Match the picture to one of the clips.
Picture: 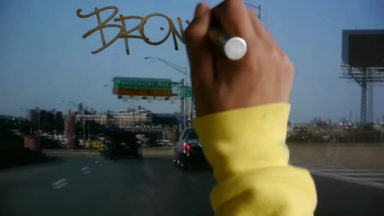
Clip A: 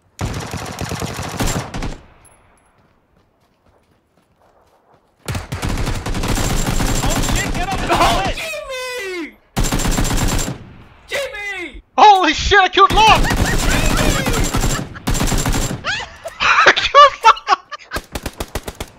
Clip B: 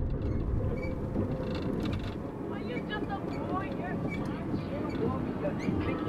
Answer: B